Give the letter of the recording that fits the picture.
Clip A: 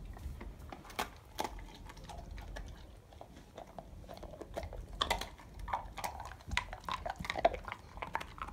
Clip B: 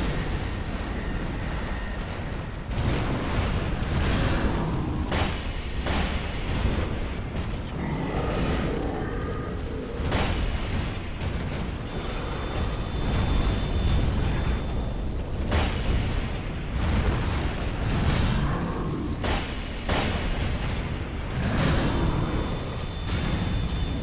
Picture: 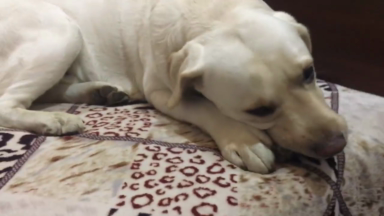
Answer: A